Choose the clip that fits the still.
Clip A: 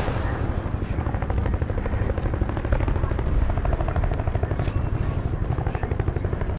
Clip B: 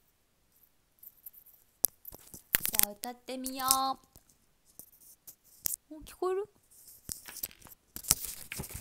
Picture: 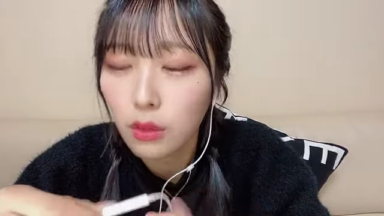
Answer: B